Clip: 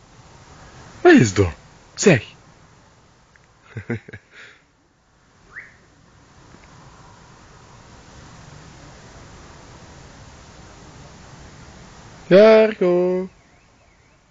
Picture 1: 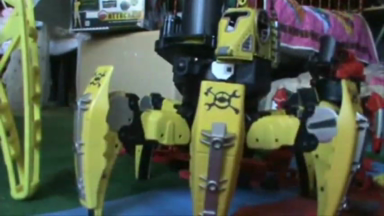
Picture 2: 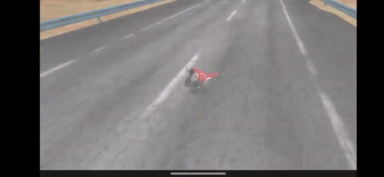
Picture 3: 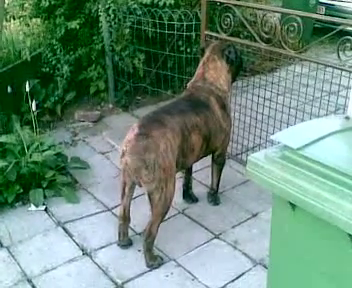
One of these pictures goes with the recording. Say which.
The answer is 3